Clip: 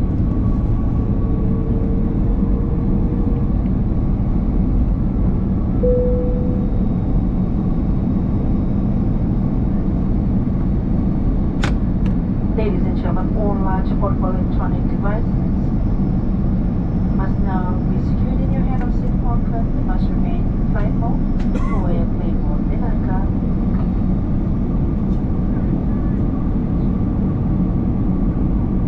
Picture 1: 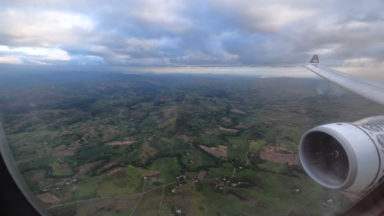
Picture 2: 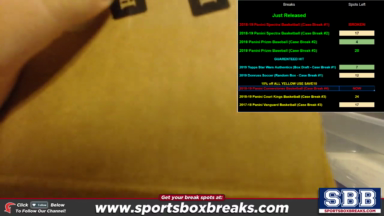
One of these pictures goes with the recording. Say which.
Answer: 1